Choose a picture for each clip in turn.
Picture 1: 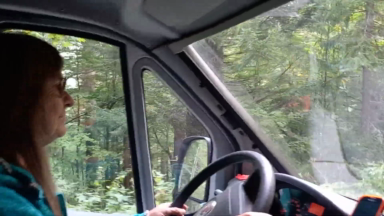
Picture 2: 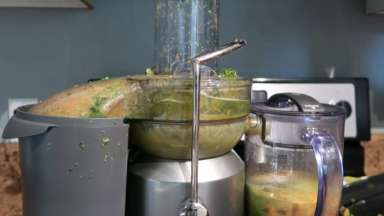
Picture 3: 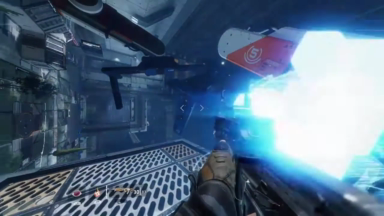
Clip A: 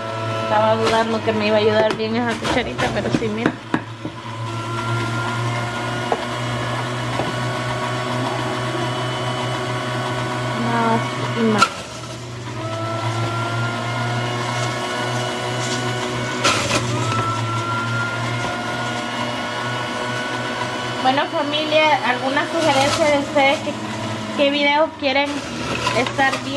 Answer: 2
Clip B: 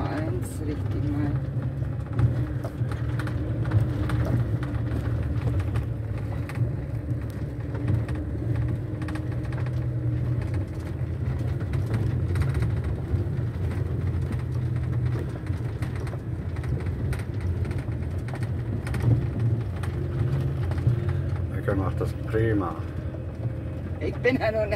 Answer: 1